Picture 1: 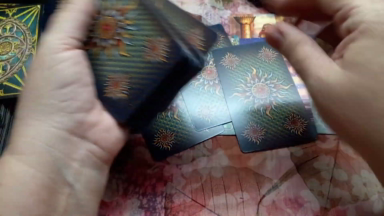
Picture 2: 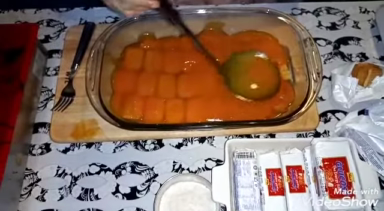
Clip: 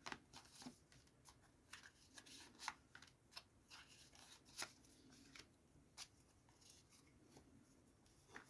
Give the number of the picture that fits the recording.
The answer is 1